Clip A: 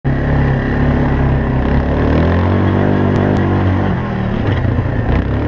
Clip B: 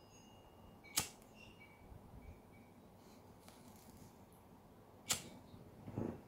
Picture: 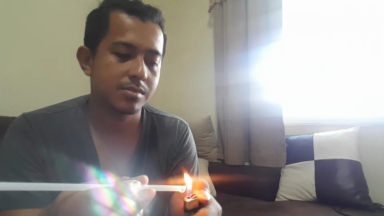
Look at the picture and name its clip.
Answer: B